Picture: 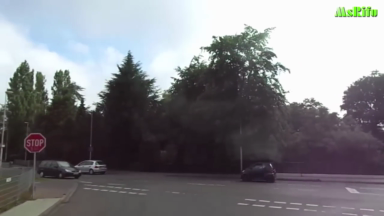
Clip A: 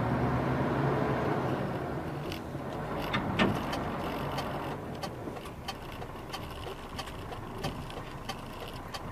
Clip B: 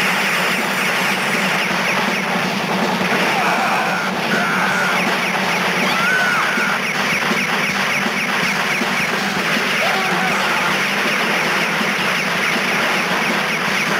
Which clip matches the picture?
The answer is A